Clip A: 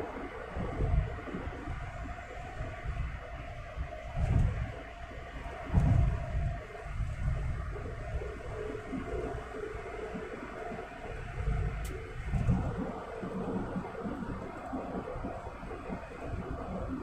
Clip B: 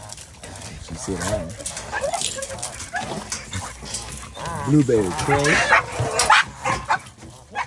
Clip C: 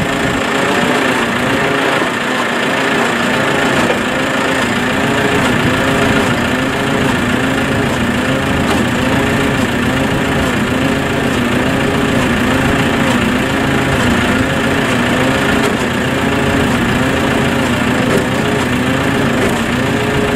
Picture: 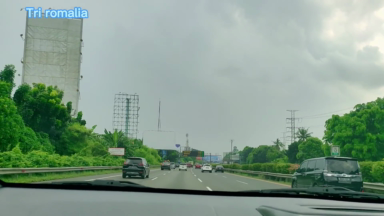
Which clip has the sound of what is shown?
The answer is A